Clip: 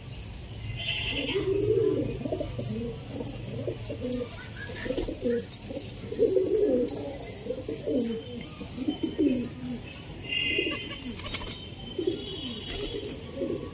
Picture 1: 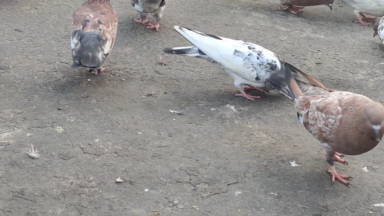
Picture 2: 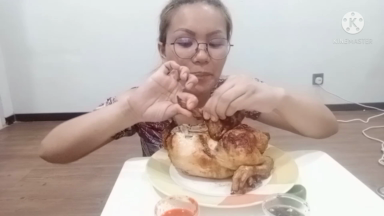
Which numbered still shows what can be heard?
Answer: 1